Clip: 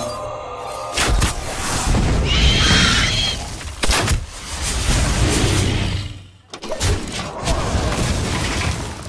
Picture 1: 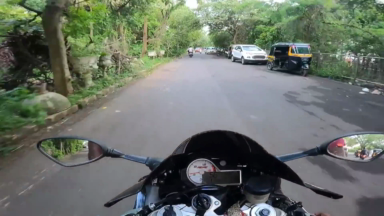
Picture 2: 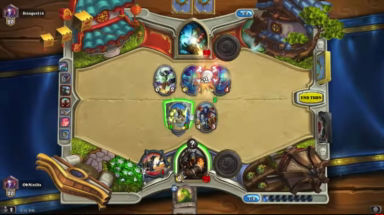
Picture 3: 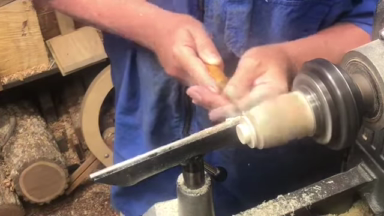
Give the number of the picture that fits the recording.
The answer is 2